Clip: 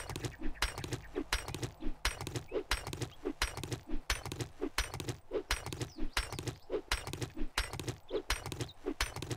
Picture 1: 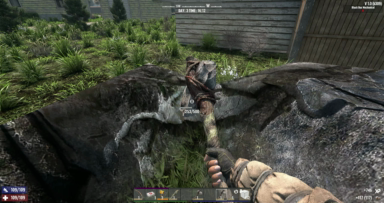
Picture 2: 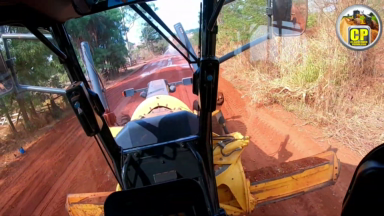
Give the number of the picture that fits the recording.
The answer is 1